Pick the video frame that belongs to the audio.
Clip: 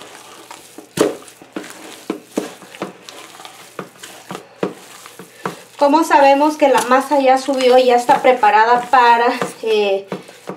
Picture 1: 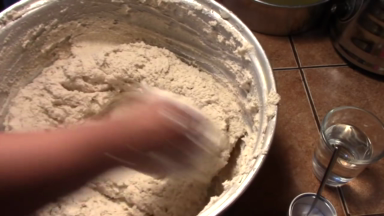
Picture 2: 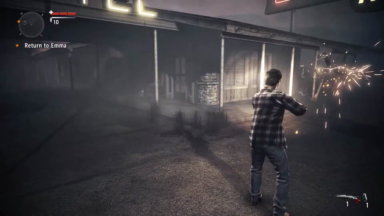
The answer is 1